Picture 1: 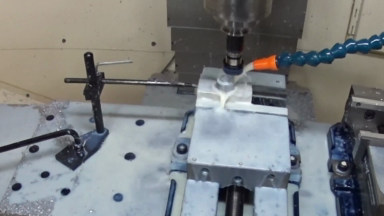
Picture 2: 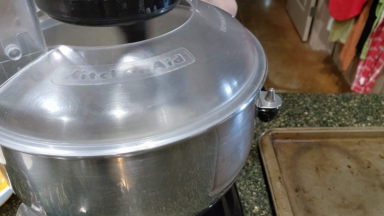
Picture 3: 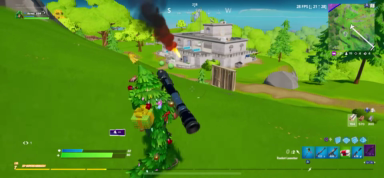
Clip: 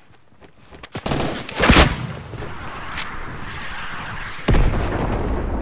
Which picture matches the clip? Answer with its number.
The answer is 3